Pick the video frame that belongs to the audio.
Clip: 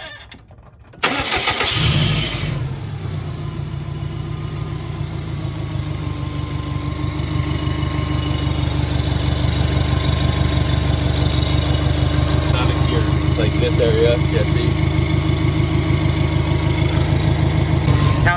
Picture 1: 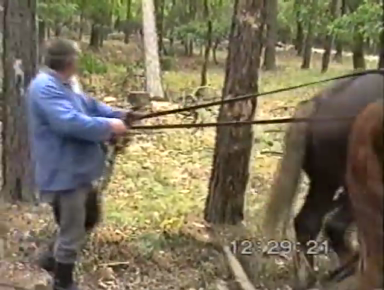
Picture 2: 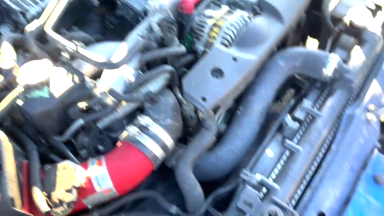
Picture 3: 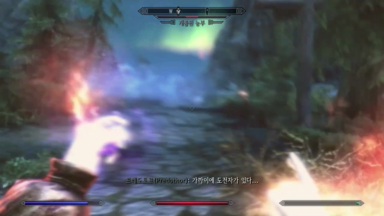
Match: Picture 2